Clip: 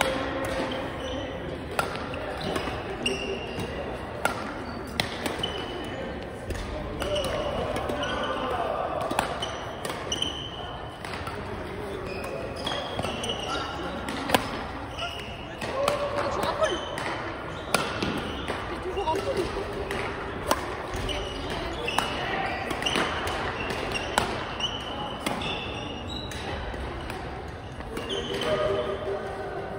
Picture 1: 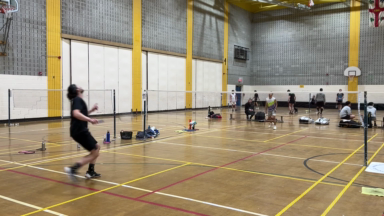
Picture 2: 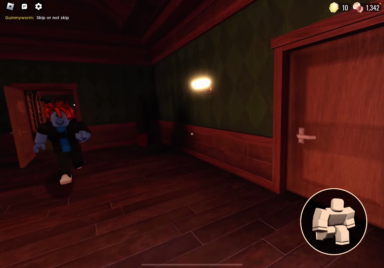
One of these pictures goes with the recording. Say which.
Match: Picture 1